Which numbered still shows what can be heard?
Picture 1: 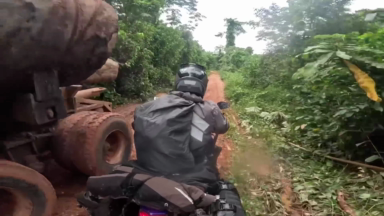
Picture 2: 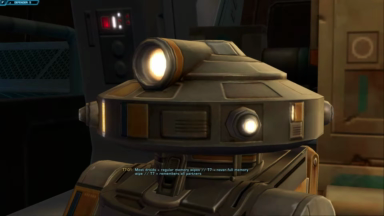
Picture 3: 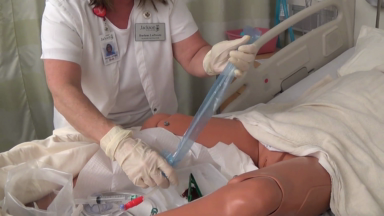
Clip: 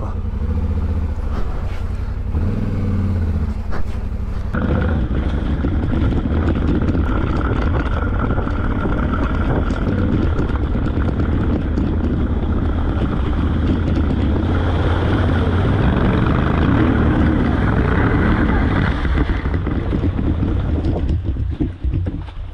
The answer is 1